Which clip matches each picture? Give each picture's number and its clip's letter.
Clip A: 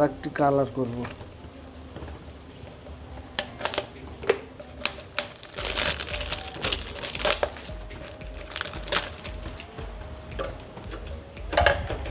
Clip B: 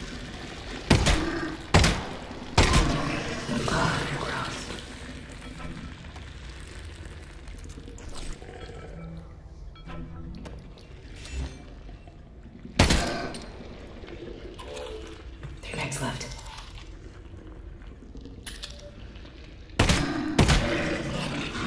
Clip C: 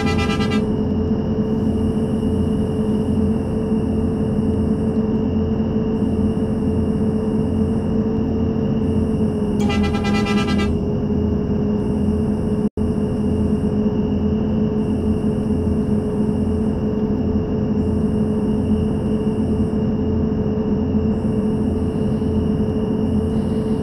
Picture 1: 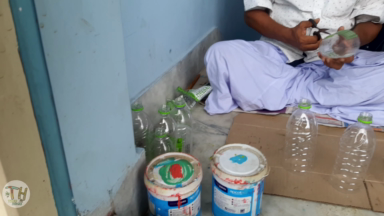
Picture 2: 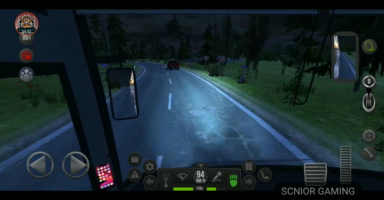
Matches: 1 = A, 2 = C